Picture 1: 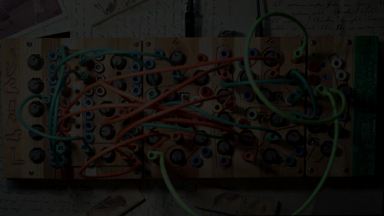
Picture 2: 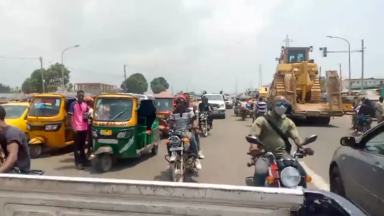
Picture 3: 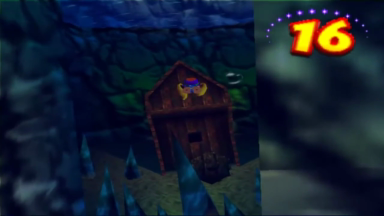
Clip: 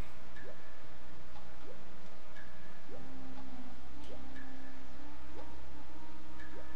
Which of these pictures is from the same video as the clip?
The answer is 3